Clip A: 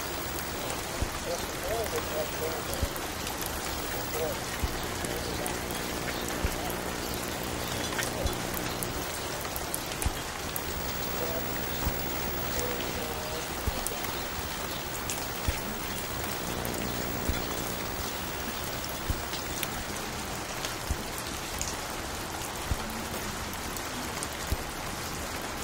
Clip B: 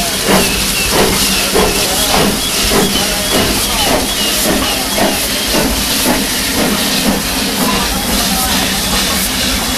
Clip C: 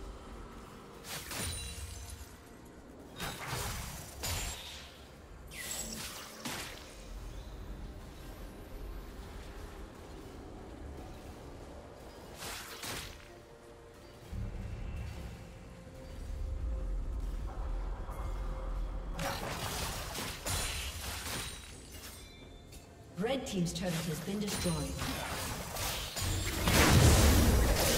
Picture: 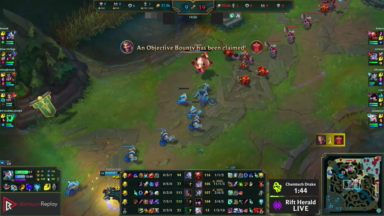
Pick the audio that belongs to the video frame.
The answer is C